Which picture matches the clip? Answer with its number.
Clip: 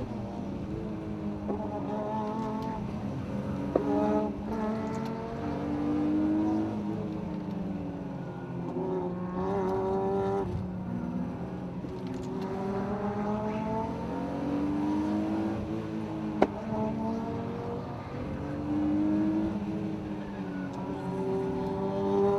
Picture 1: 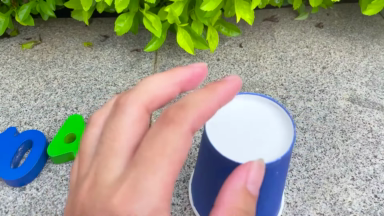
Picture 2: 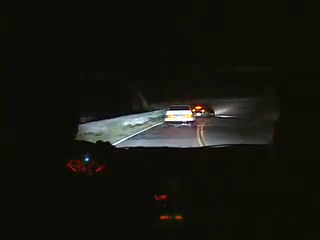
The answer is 2